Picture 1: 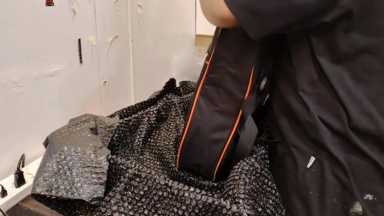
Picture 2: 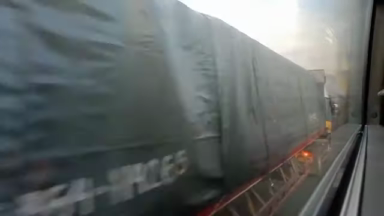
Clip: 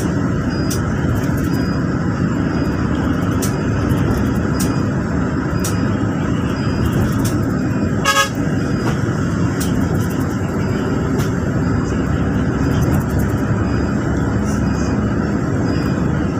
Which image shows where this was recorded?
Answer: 2